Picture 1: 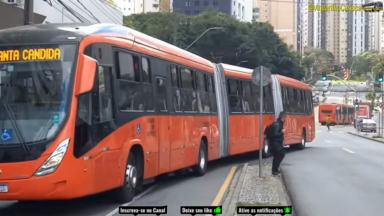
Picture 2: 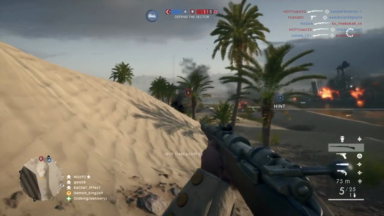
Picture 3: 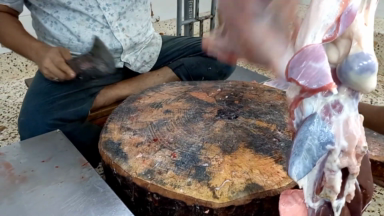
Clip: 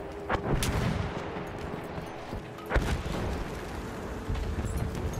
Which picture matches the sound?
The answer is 2